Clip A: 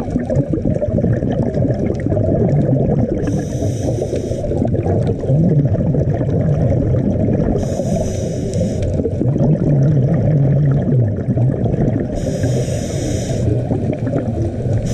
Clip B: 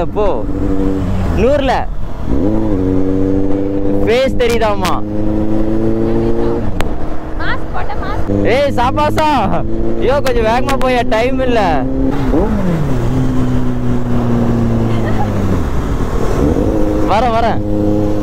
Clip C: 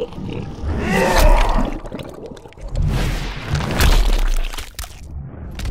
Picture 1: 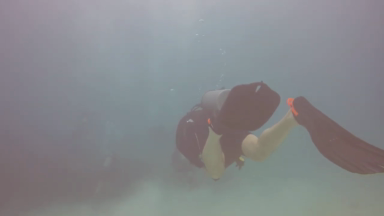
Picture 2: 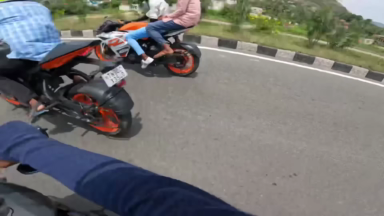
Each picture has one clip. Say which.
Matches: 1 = A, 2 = B